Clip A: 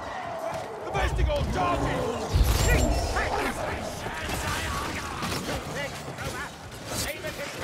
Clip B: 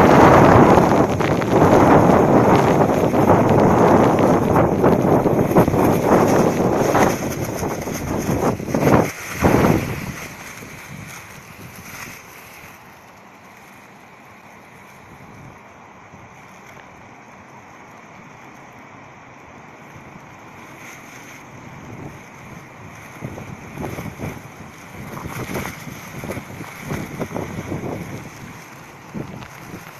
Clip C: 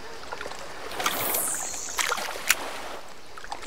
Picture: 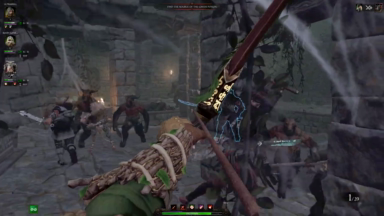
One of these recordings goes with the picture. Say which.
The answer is A